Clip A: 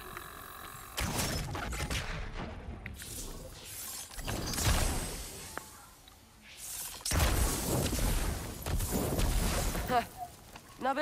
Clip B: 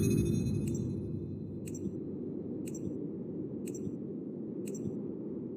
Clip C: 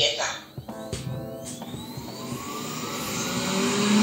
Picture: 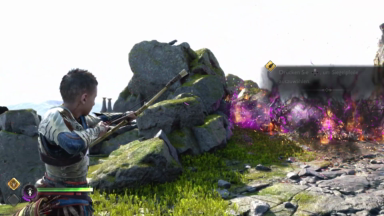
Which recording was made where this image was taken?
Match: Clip A